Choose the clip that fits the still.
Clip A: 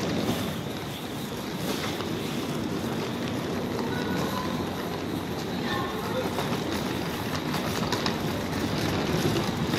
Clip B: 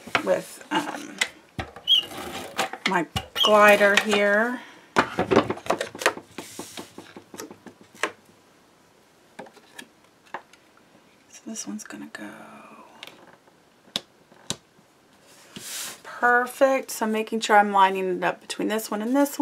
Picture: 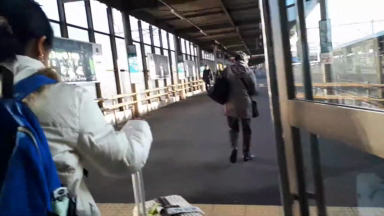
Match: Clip A